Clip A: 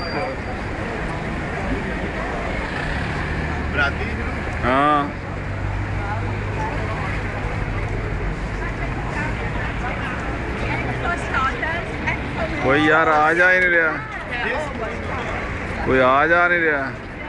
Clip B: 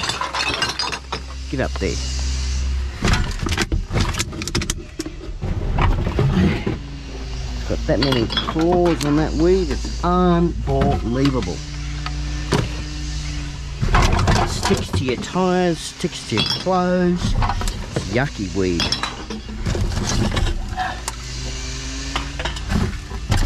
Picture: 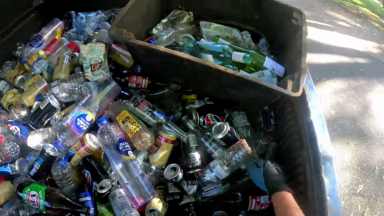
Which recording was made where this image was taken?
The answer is B